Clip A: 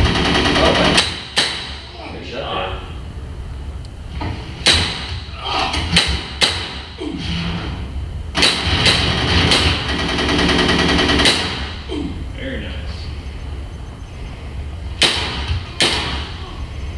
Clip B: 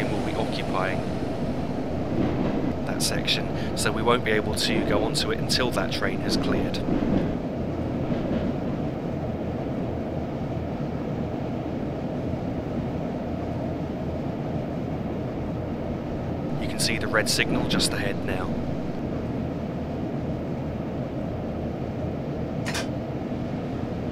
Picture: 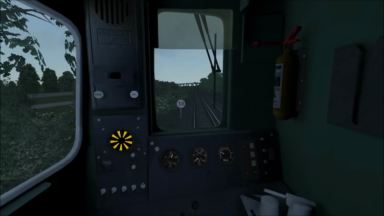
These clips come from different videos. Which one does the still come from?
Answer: B